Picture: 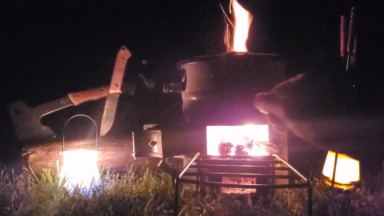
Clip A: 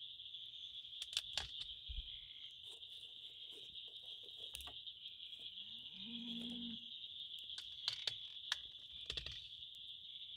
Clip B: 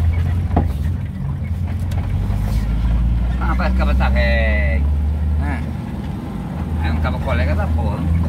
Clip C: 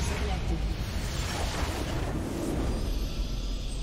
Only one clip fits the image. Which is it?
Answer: A